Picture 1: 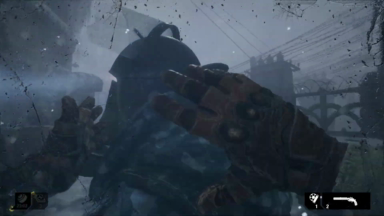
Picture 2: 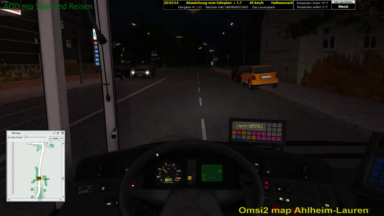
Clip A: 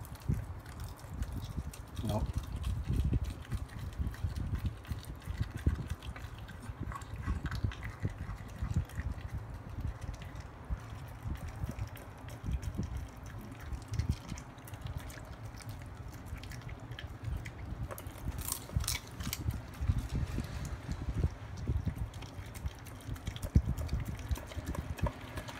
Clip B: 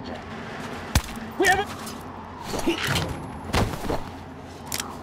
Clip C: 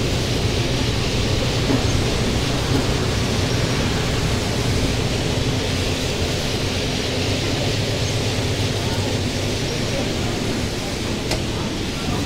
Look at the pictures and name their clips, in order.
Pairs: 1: B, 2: C